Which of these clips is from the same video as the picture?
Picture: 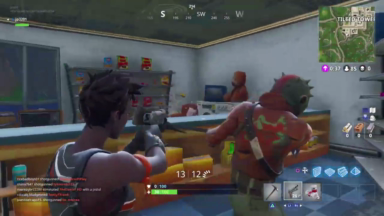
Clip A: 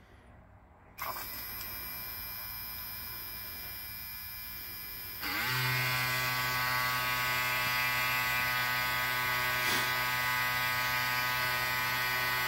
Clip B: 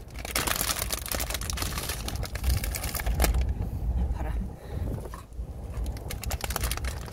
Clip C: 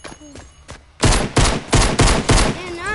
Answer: C